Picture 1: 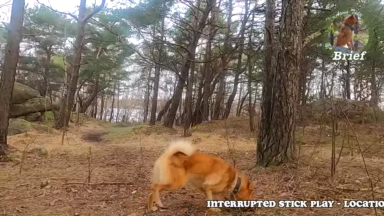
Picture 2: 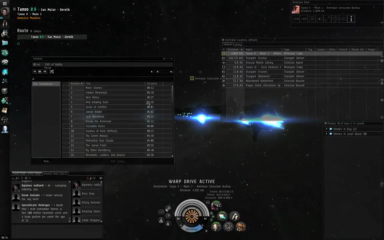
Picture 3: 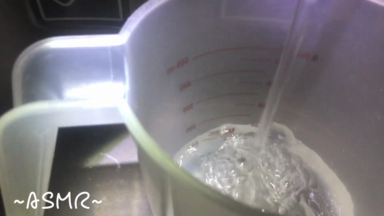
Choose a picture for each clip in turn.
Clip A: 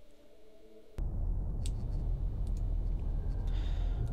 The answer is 2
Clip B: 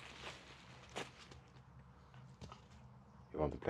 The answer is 1